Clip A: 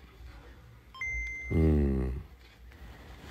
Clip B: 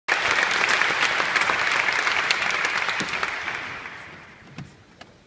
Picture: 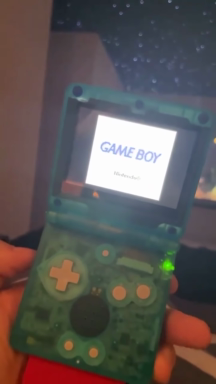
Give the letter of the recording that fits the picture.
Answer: A